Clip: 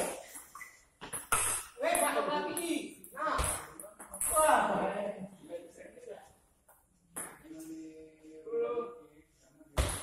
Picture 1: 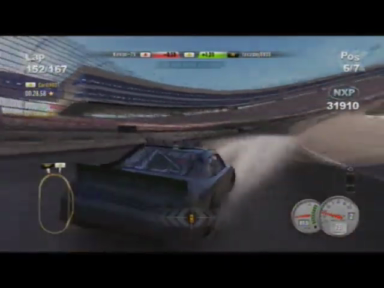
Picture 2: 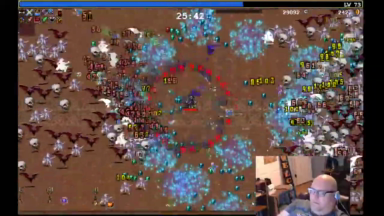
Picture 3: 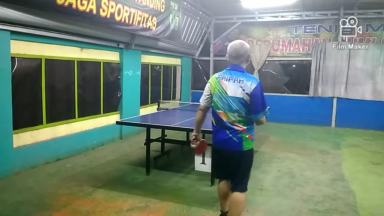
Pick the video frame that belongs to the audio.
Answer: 3